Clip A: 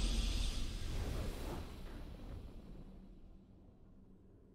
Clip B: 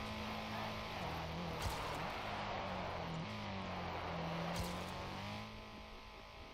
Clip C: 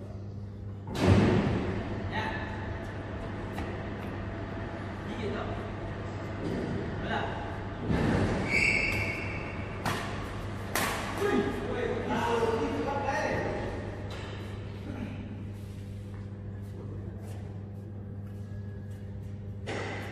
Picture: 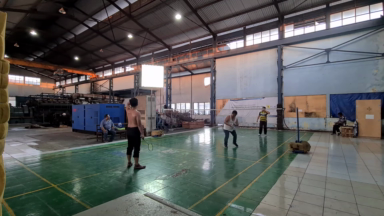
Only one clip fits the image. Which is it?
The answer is C